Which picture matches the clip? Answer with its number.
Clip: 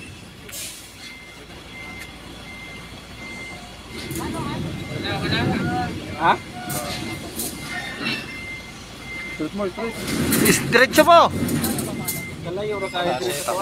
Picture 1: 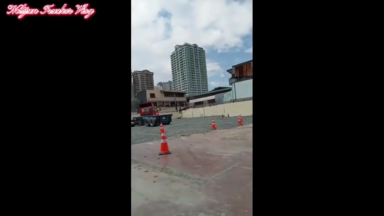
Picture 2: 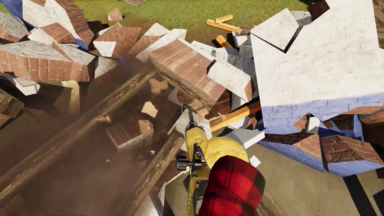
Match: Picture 1